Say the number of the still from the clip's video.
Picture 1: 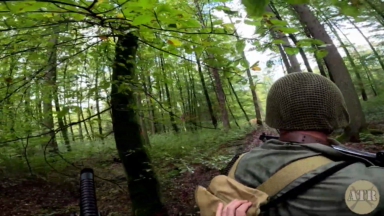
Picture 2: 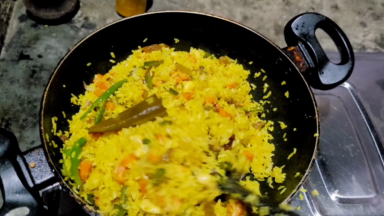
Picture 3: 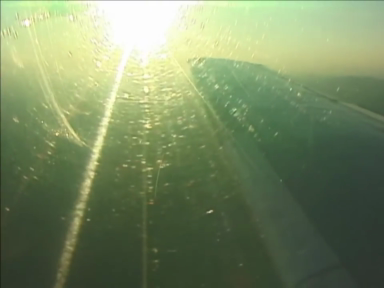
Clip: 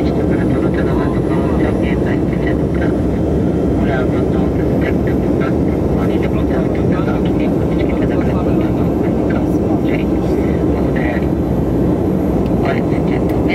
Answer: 3